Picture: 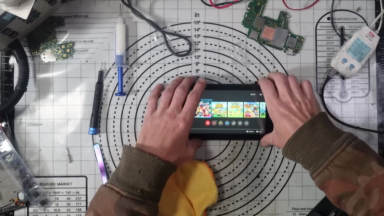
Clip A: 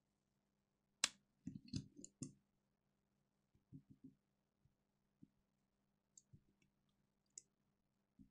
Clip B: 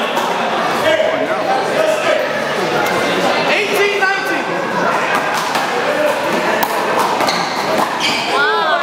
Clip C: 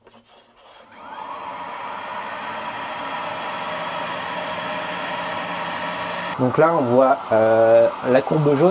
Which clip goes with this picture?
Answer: A